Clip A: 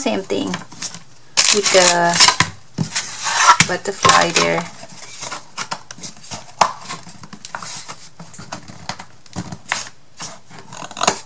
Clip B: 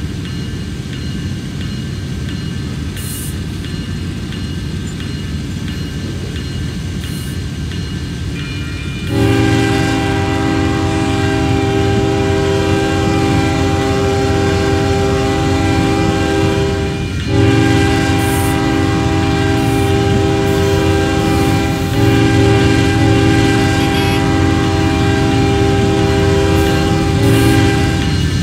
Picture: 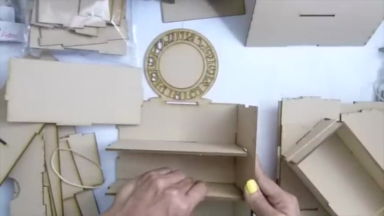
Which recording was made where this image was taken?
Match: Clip A